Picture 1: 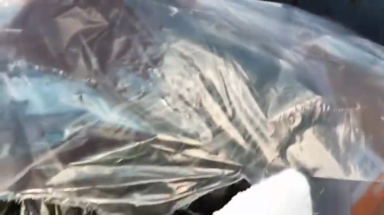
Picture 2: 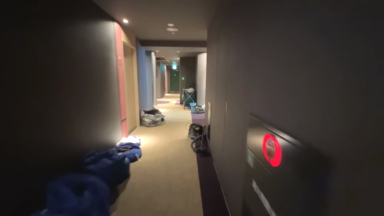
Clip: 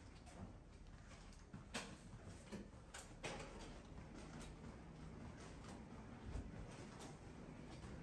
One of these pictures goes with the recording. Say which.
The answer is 2